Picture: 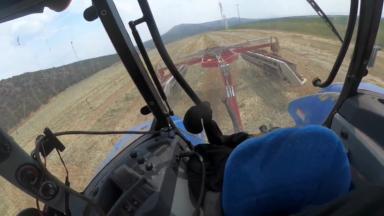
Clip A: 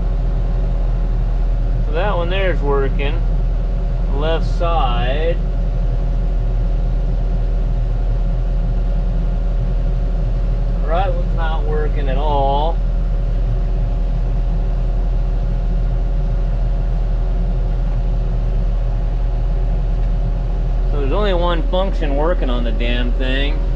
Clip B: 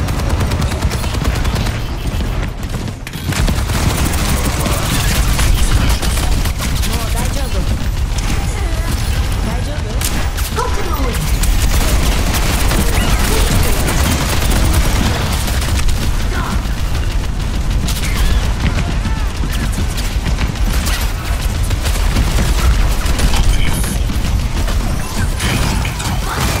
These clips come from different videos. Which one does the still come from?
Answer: A